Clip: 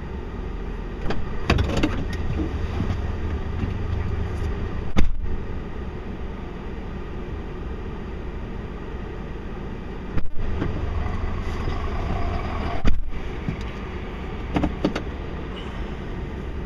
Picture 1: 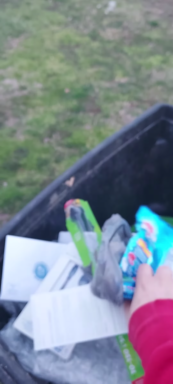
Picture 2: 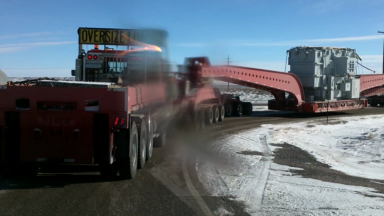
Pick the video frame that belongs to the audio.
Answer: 2